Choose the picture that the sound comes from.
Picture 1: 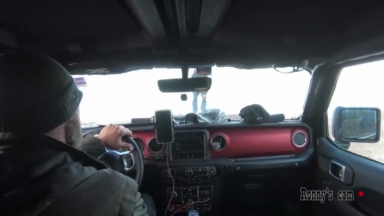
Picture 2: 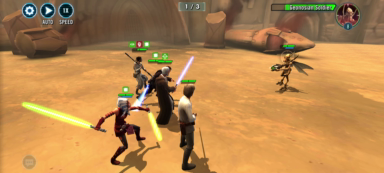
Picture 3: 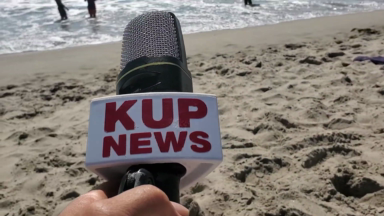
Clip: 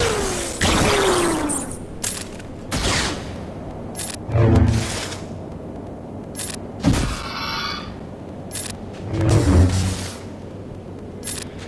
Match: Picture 2